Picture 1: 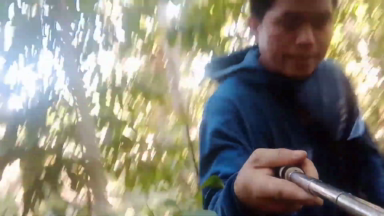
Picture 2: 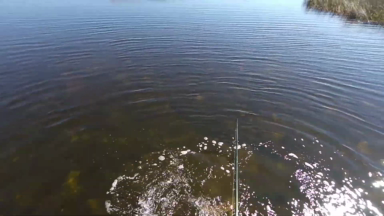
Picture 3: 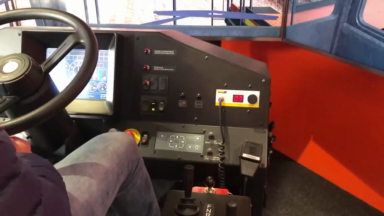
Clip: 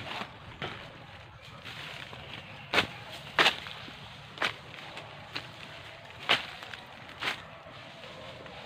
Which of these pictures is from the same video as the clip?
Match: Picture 1